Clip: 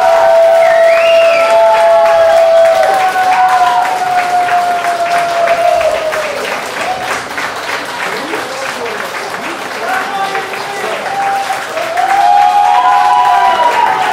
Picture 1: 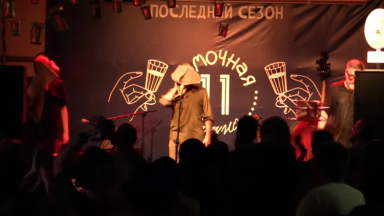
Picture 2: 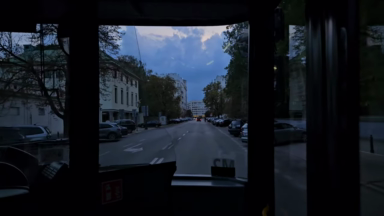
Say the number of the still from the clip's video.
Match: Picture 1